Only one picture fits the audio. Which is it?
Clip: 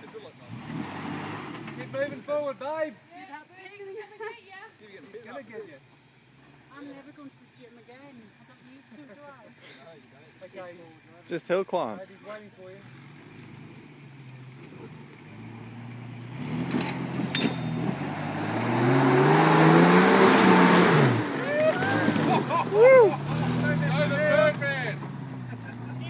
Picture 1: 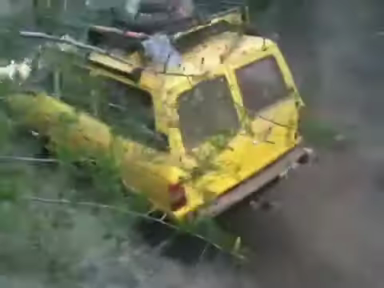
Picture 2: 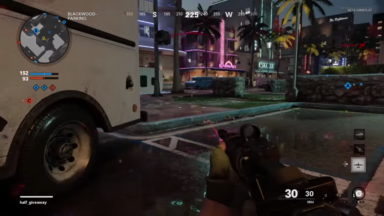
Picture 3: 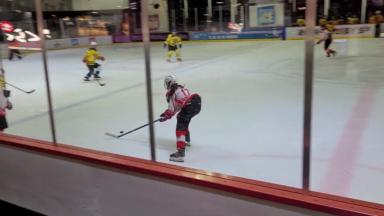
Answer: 1